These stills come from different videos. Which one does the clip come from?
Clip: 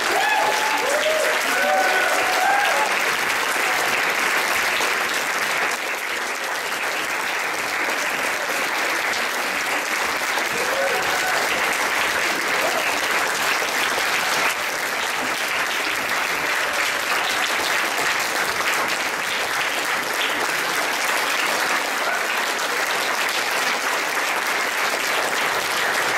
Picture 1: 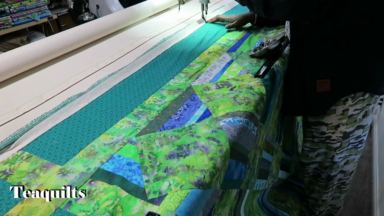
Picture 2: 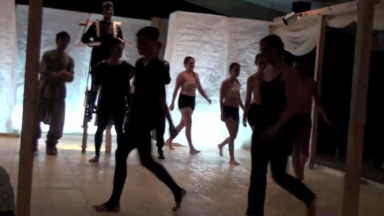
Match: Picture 2